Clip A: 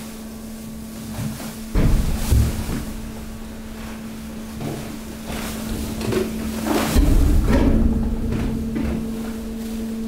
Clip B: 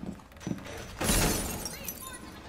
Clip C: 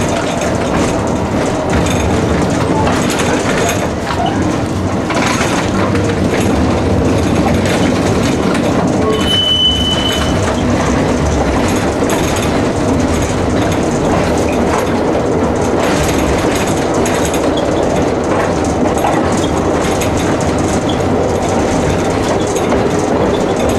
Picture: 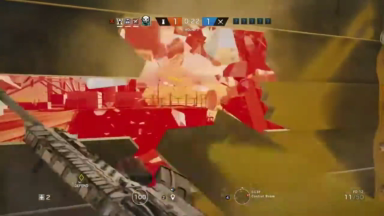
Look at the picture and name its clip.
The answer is B